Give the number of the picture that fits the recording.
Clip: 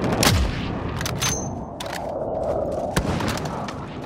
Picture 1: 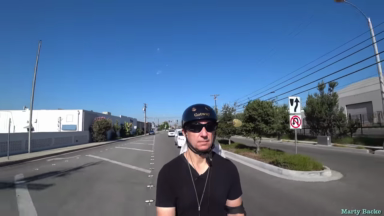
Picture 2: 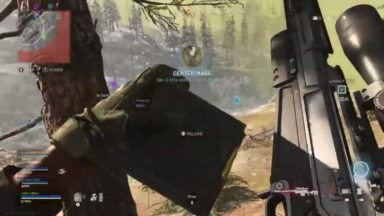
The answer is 2